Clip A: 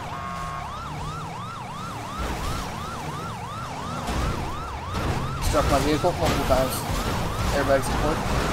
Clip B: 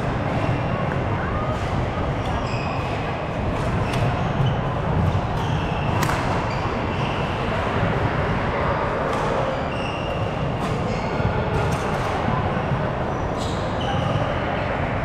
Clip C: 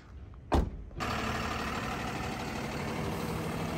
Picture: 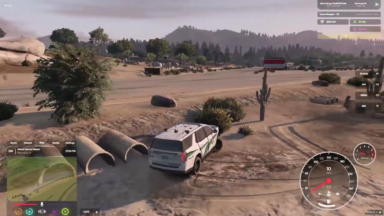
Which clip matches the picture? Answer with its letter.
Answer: A